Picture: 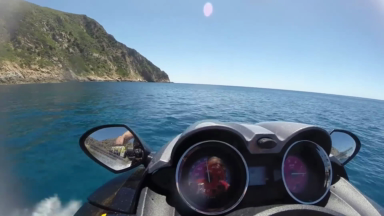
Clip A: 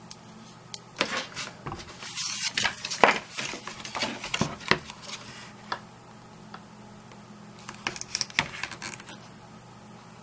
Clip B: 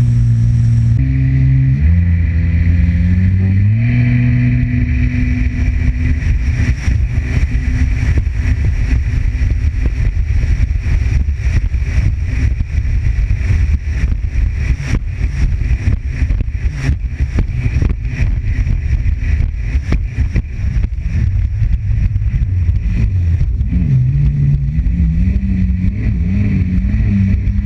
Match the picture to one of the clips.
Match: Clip B